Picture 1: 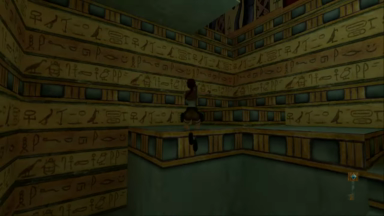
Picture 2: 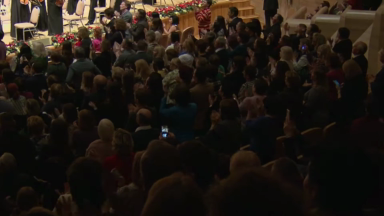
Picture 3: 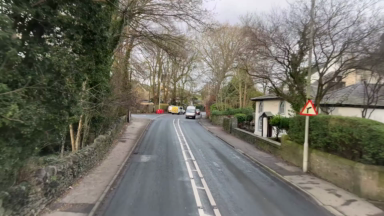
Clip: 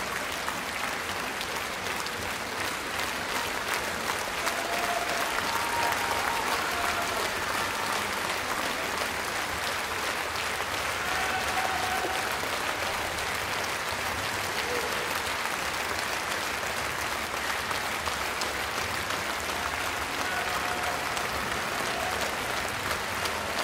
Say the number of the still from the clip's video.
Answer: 2